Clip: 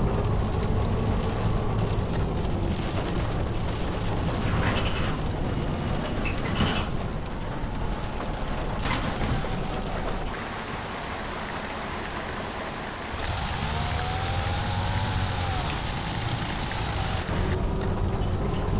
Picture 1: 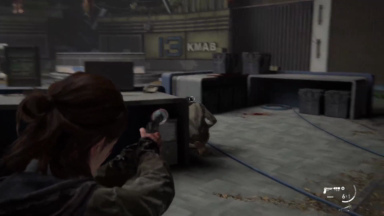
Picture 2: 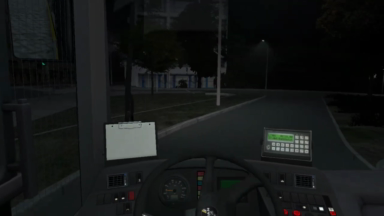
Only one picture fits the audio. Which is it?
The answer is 2